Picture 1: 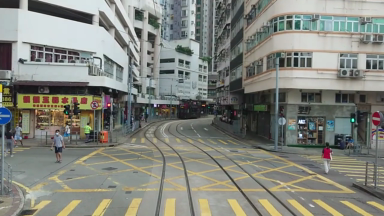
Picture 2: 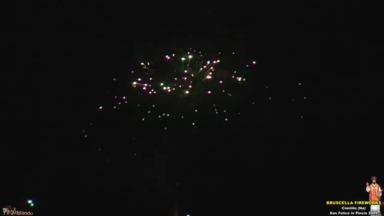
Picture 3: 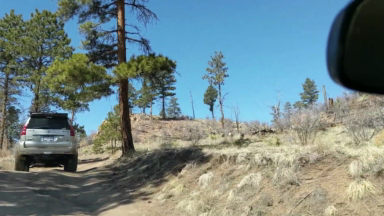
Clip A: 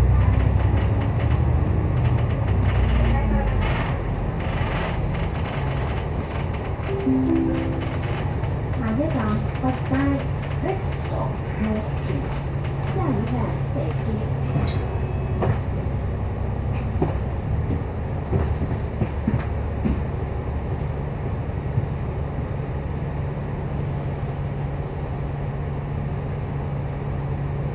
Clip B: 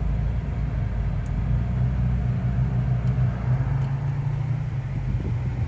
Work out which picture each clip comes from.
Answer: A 1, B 3